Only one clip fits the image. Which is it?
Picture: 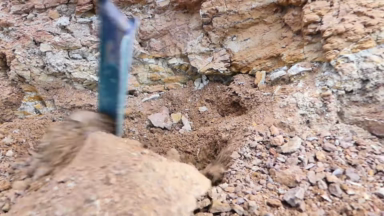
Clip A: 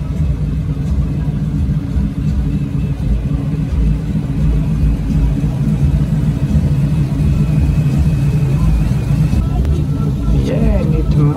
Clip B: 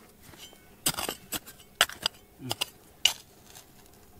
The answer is B